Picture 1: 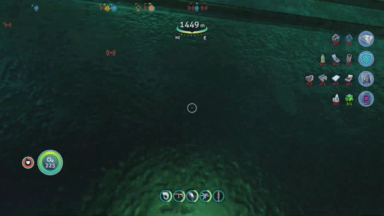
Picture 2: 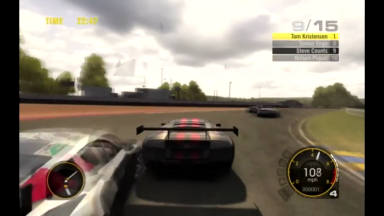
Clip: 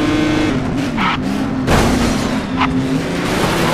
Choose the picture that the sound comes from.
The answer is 2